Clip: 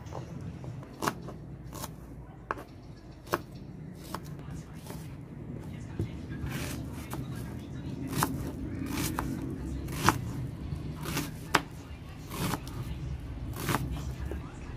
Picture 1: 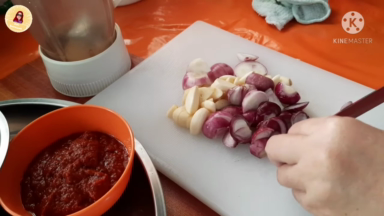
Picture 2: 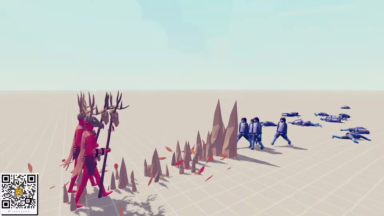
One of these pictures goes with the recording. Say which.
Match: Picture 1